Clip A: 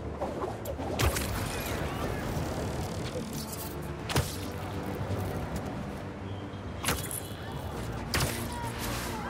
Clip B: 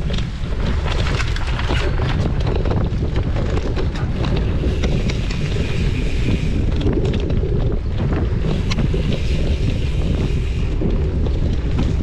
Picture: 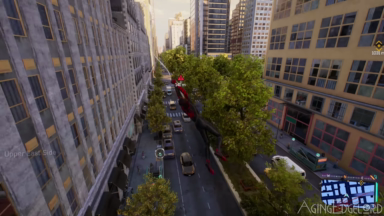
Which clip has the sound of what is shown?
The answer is A